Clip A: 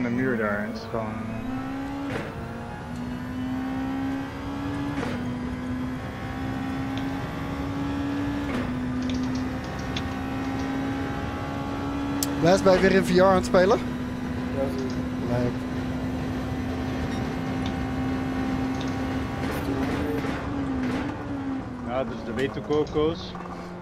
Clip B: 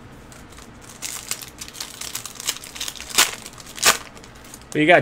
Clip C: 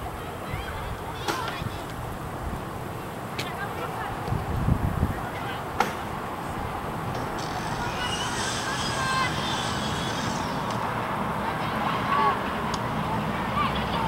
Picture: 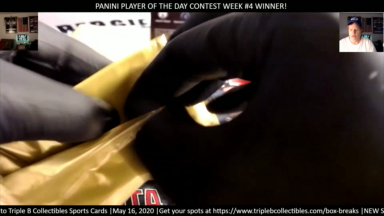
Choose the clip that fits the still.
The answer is B